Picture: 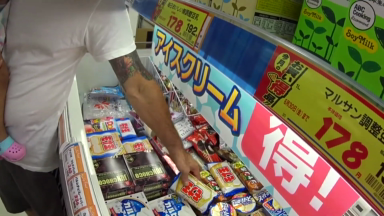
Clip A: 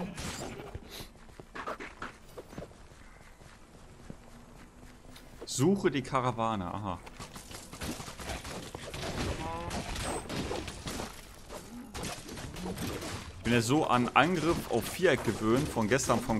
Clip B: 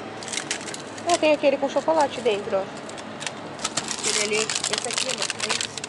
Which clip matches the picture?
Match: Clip B